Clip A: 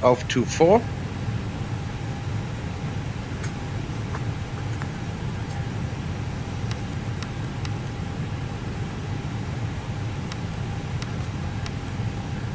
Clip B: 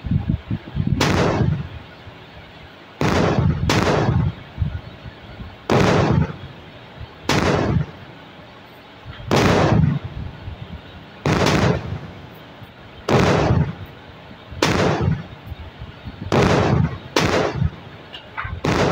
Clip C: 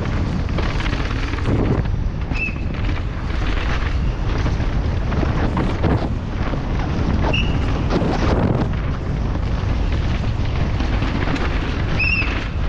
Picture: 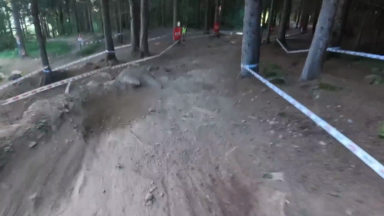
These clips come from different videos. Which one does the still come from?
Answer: C